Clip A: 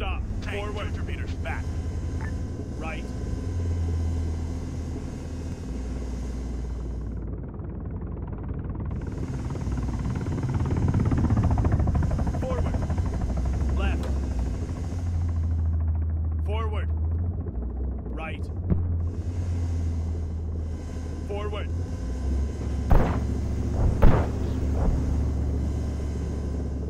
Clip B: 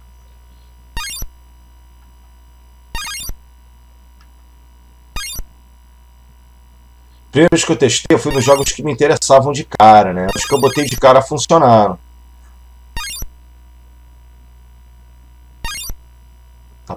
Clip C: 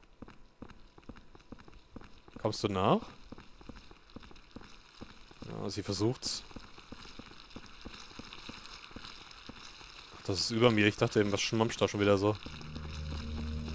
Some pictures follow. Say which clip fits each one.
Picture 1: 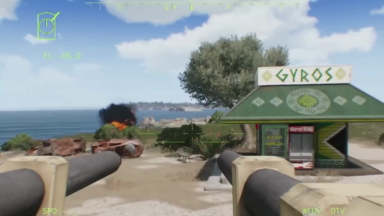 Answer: A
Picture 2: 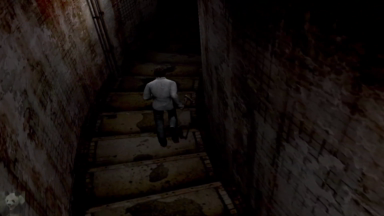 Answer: C